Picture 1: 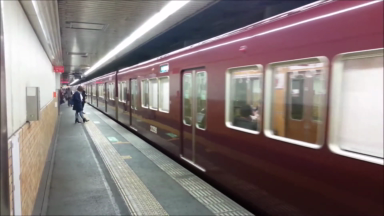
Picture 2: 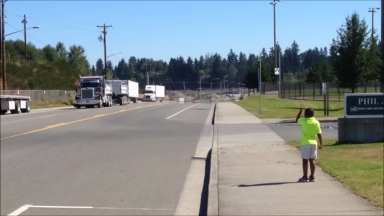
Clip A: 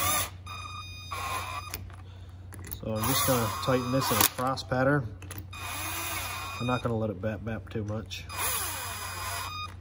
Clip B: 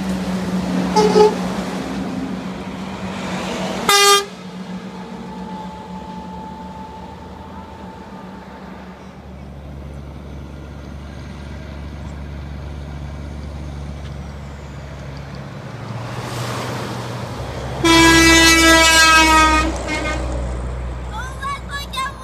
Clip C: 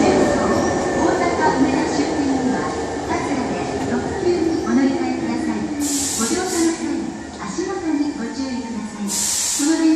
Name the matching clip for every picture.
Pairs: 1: C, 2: B